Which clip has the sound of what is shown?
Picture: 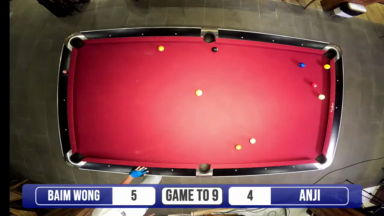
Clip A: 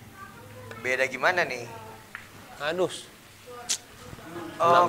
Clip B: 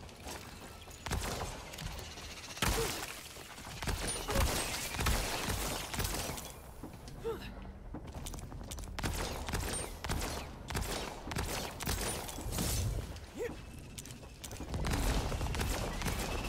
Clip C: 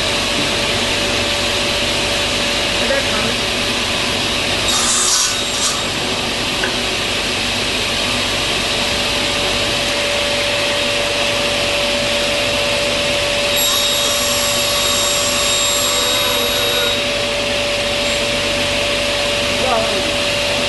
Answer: A